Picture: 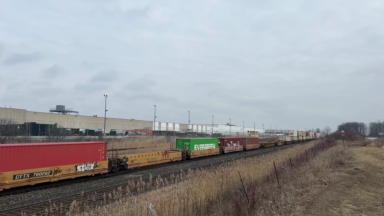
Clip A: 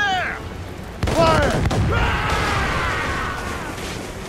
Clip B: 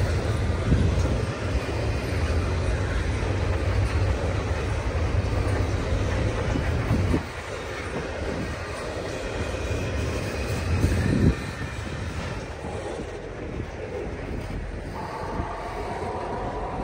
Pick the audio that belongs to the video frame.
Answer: B